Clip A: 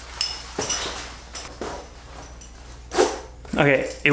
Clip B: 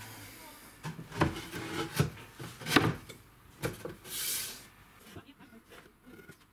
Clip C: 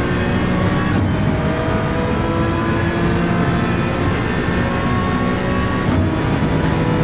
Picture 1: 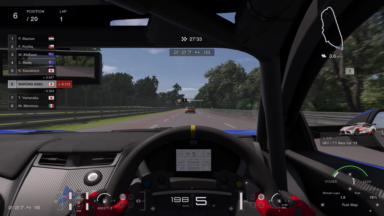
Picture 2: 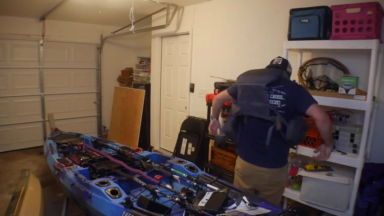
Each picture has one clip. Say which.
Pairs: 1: C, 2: A